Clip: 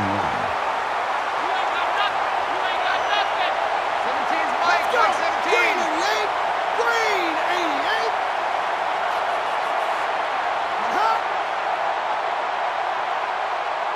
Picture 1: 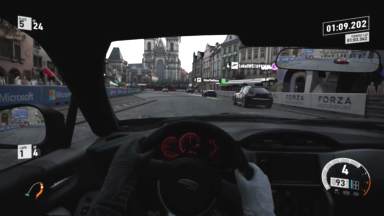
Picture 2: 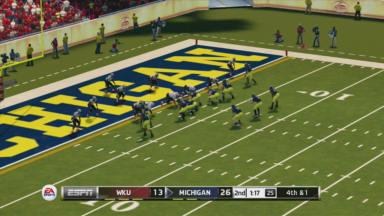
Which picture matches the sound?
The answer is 2